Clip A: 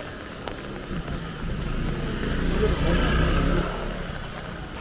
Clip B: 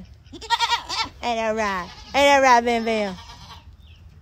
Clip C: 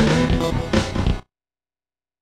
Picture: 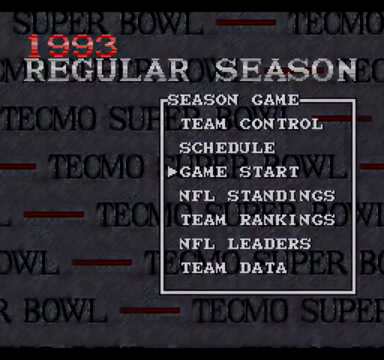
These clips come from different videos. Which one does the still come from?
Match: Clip C